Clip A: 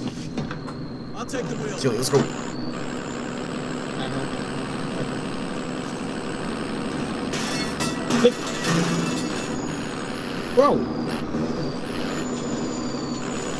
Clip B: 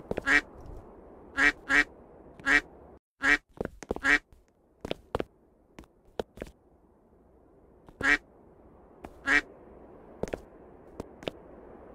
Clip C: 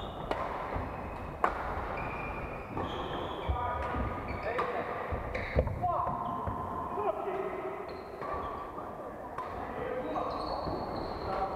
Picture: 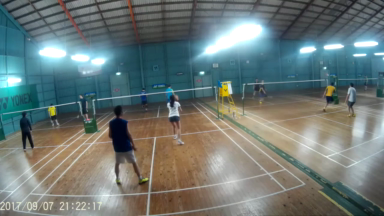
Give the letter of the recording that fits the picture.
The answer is C